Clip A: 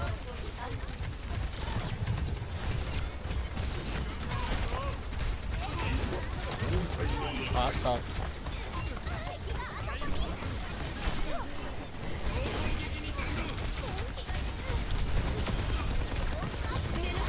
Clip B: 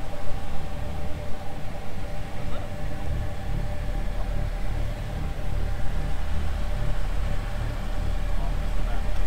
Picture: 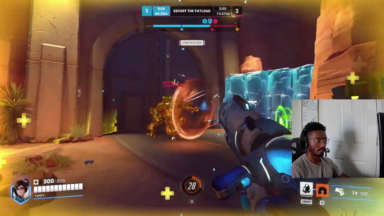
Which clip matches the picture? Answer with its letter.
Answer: A